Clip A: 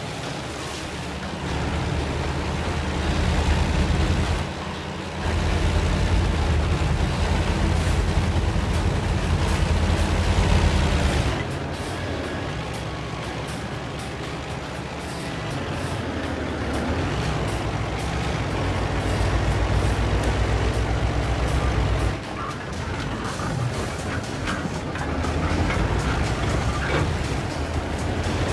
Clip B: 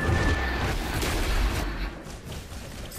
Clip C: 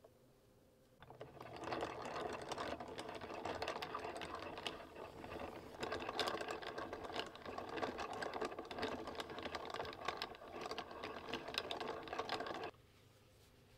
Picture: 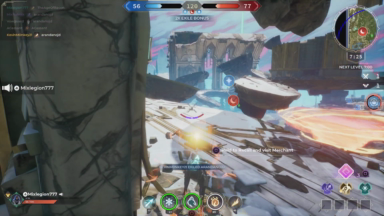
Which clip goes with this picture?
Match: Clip B